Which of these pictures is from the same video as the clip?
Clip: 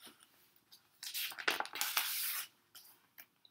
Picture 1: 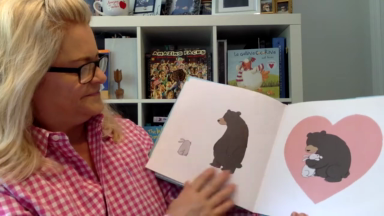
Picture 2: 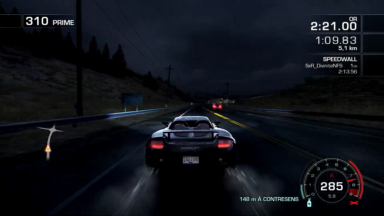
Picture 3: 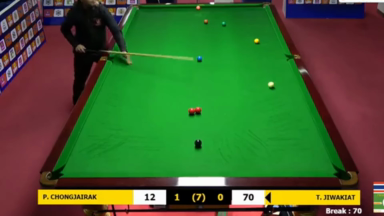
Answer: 1